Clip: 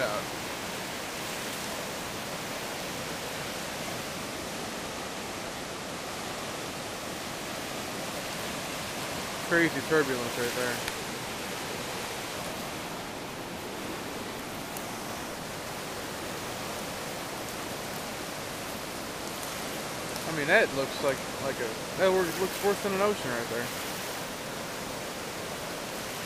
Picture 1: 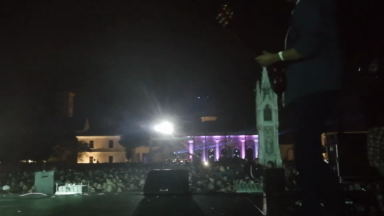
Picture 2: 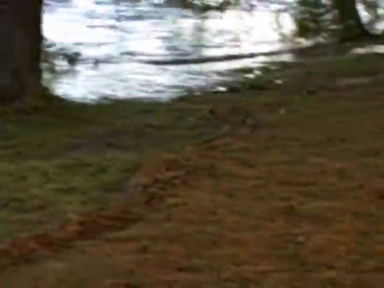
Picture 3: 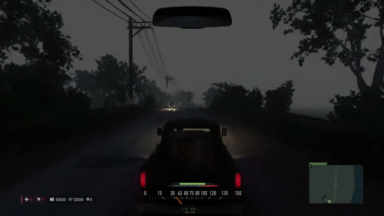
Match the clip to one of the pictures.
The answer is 2